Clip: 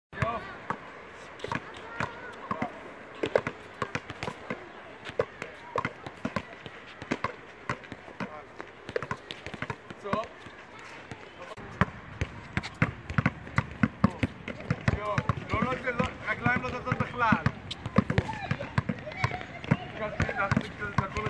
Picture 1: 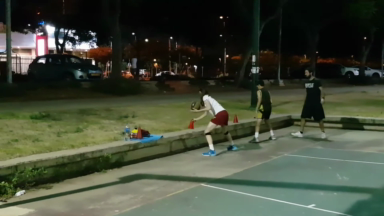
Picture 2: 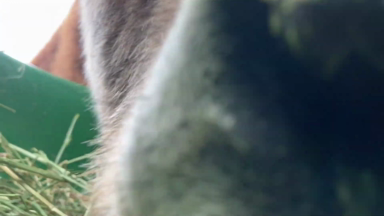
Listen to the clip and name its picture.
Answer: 1